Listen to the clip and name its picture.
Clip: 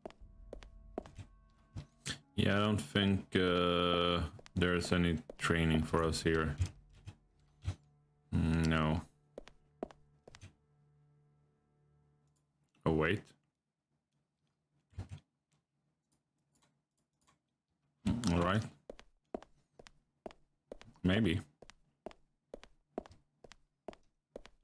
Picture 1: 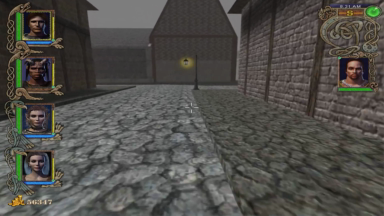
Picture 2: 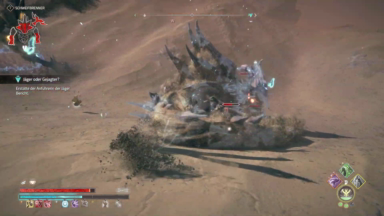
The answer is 1